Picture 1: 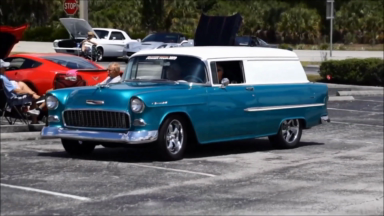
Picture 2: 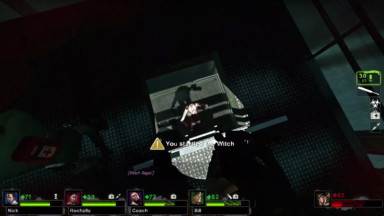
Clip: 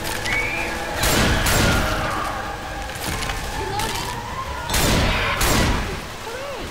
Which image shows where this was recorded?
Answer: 2